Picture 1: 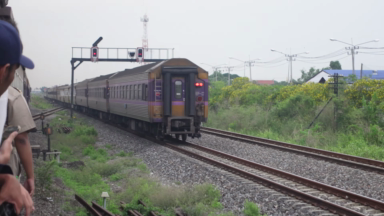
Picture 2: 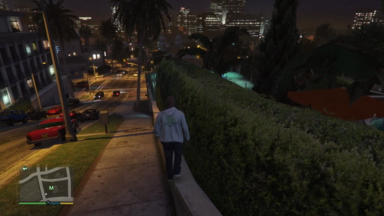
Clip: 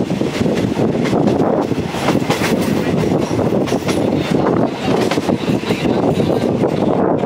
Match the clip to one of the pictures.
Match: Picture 1